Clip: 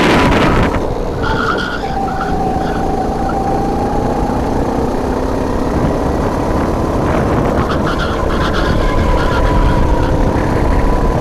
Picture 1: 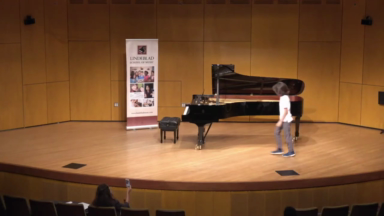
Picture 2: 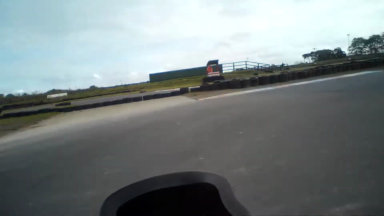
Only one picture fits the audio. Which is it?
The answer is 2